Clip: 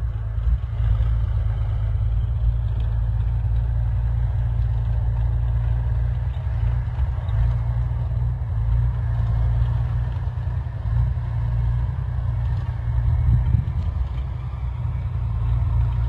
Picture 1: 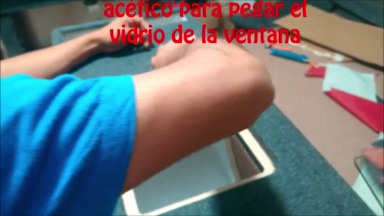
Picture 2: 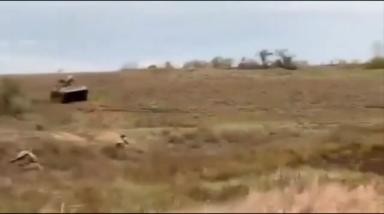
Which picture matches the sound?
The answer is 2